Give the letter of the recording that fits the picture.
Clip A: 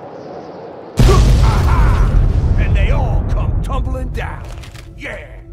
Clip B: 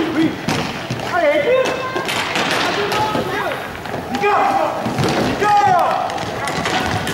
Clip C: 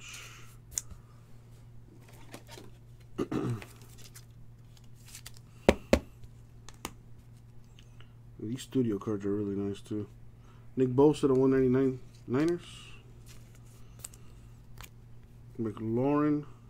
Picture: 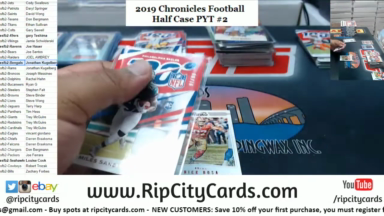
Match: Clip C